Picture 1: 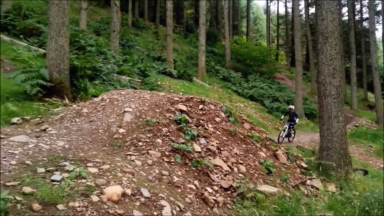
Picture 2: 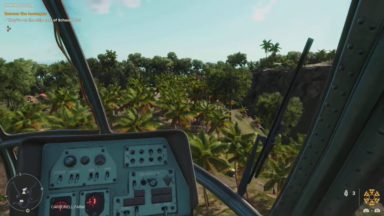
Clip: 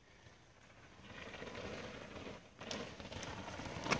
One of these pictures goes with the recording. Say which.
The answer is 1